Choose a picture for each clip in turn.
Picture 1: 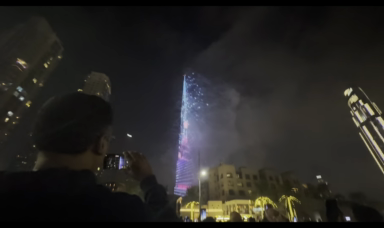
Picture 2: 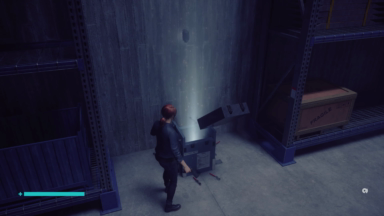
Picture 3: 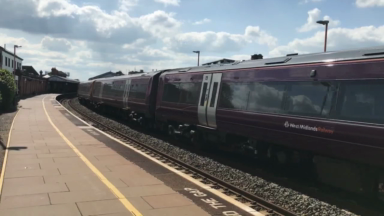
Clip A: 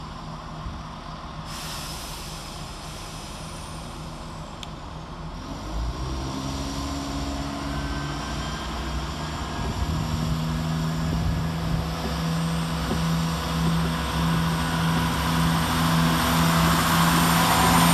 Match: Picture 3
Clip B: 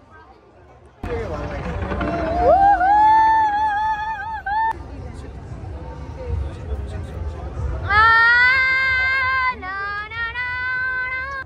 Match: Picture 1